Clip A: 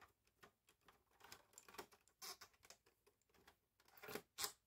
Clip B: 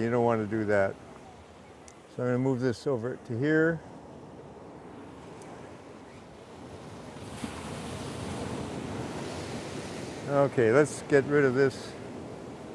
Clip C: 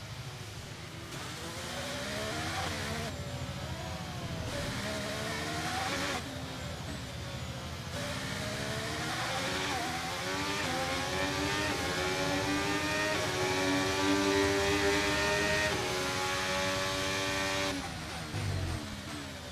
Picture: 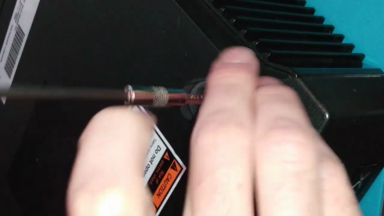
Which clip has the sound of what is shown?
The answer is A